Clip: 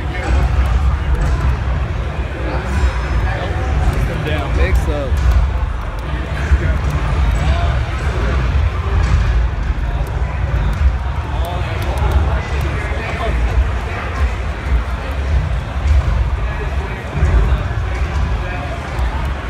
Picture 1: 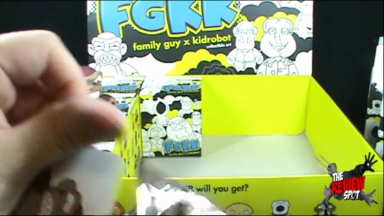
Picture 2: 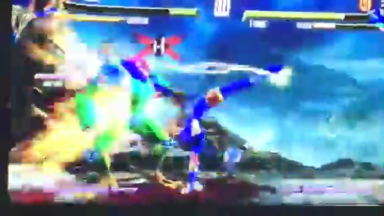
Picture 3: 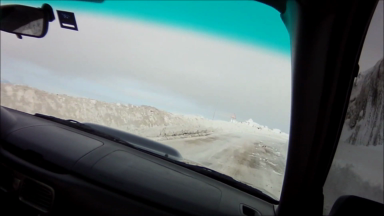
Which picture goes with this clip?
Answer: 2